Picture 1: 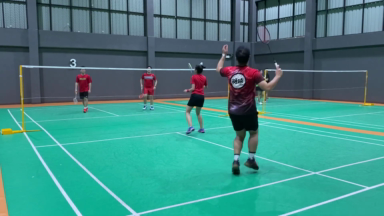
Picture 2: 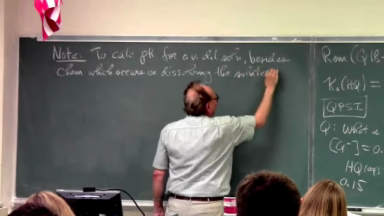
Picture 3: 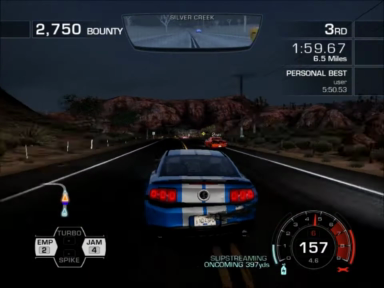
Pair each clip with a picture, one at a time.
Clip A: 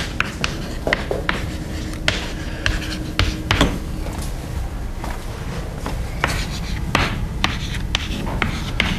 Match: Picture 2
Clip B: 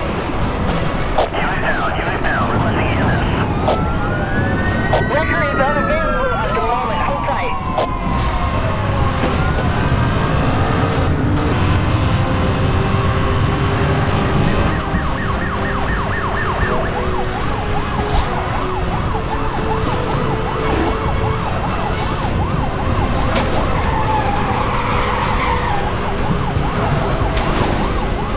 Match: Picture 3